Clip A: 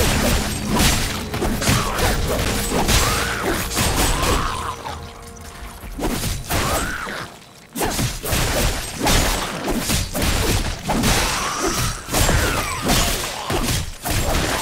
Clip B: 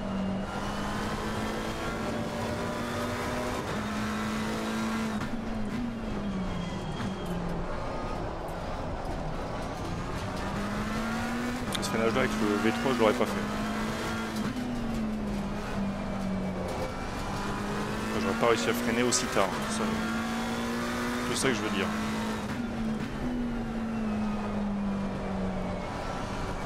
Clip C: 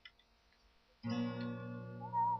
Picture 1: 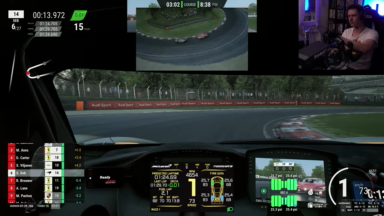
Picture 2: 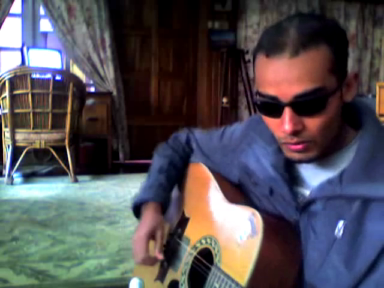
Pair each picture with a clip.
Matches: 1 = B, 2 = C